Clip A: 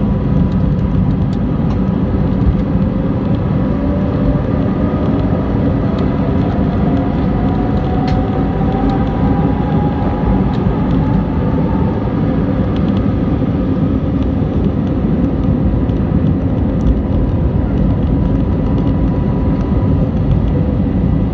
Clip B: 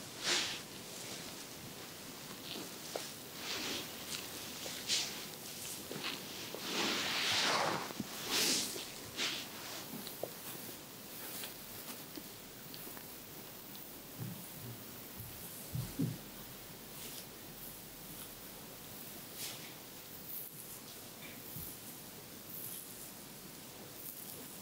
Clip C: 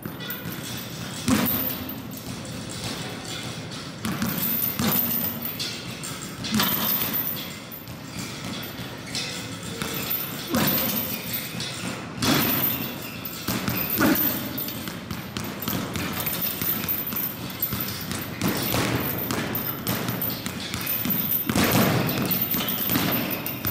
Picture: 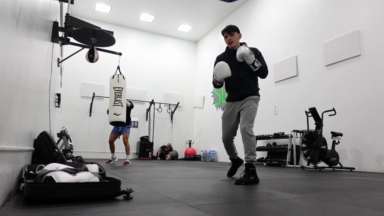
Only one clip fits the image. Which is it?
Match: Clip C